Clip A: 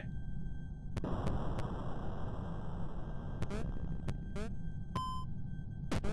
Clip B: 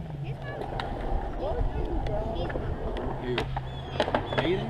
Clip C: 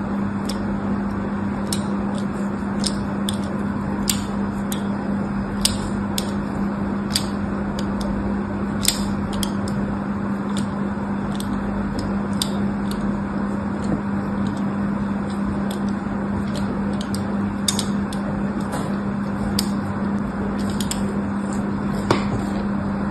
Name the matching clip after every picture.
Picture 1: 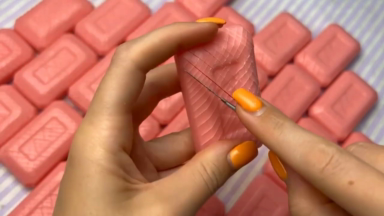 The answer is C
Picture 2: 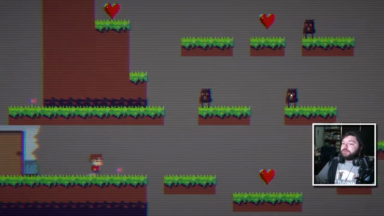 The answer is A